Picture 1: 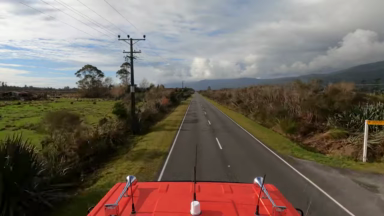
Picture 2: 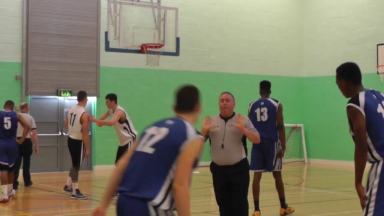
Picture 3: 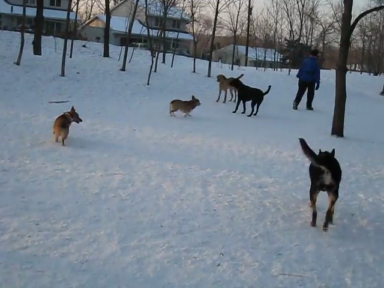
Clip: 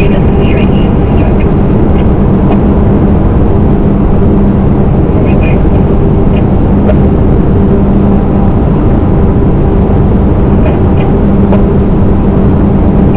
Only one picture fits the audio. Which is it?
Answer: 1